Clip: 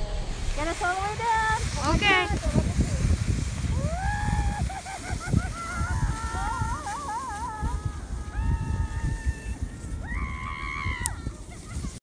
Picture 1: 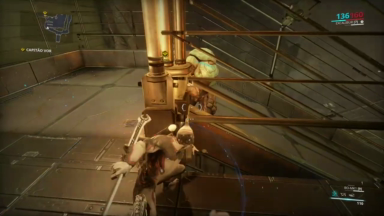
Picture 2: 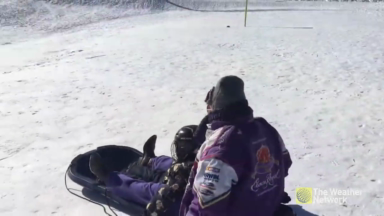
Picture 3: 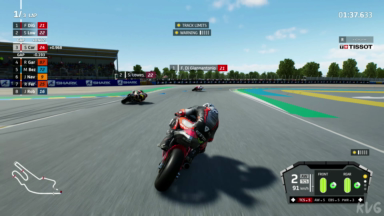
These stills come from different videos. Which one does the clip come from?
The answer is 2